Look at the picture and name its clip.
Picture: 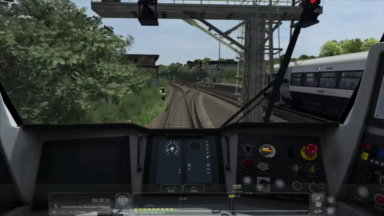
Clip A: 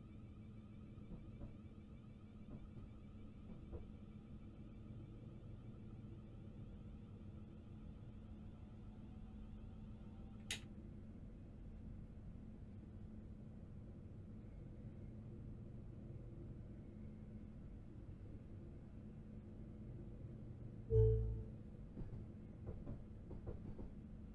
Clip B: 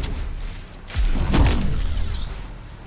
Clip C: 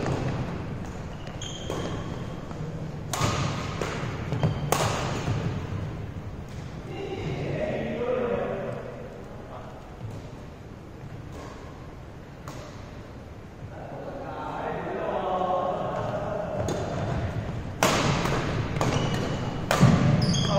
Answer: A